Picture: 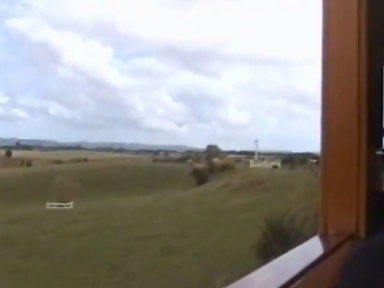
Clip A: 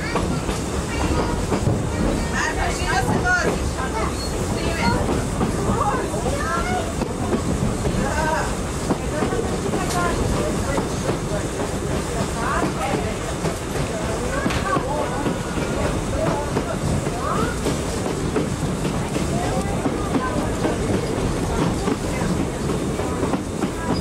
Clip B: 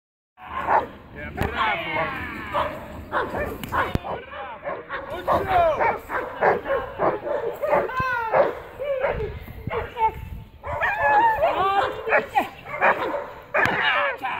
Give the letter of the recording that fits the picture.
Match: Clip A